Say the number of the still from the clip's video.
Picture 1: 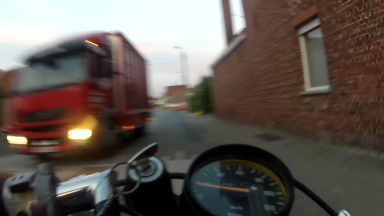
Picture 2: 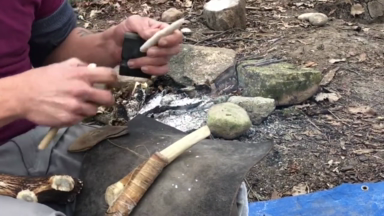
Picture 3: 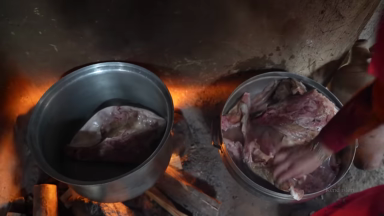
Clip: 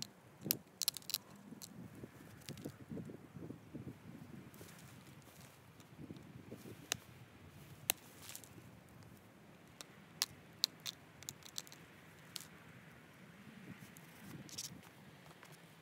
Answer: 2